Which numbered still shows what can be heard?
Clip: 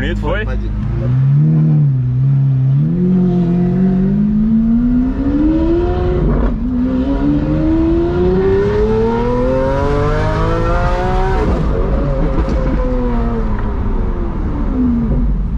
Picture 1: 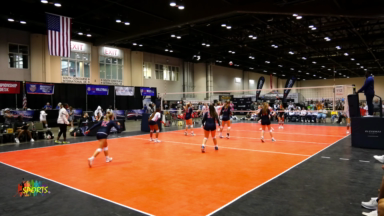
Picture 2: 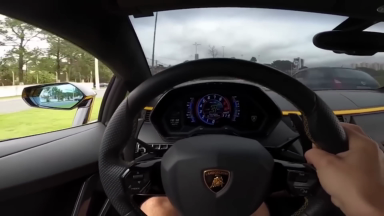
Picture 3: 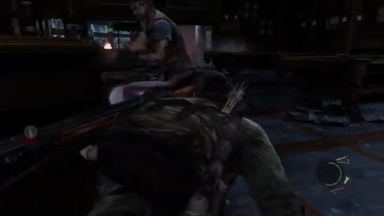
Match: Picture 2